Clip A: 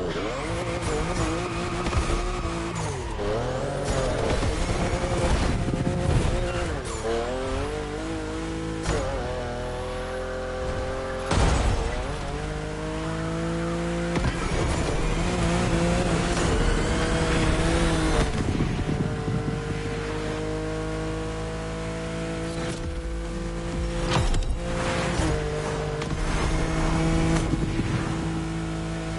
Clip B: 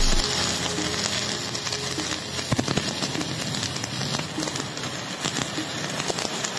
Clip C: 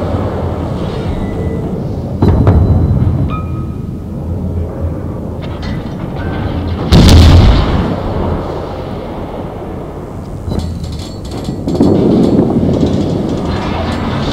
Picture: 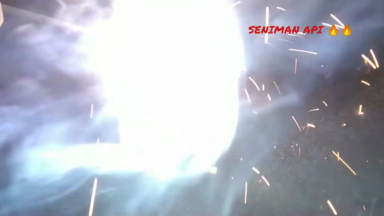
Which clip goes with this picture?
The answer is B